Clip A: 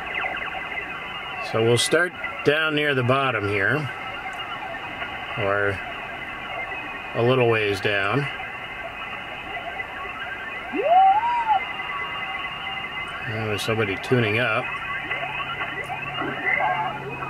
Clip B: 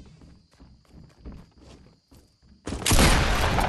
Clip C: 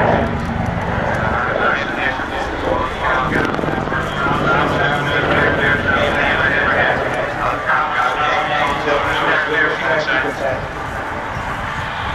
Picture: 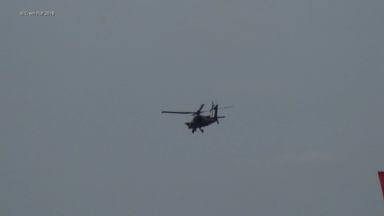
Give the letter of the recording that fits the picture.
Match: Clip C